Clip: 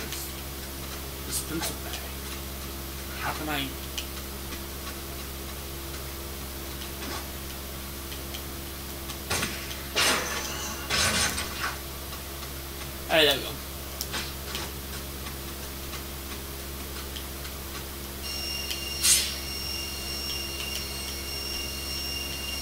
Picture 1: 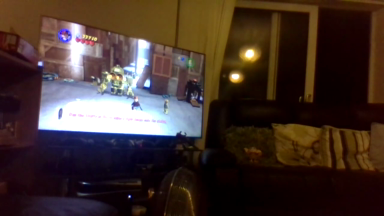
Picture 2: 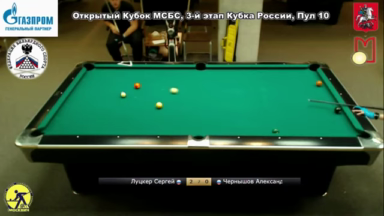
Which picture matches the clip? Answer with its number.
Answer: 1